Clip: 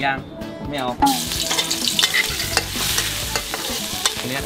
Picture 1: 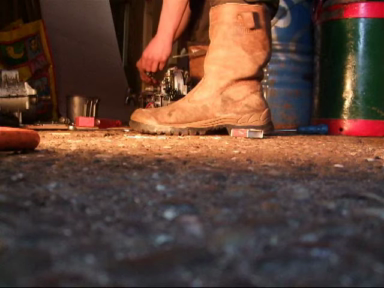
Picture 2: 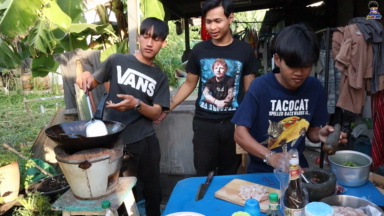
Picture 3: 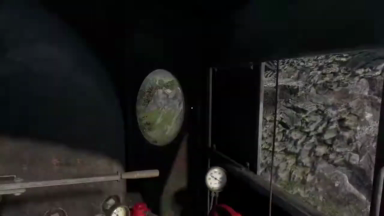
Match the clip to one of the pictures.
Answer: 2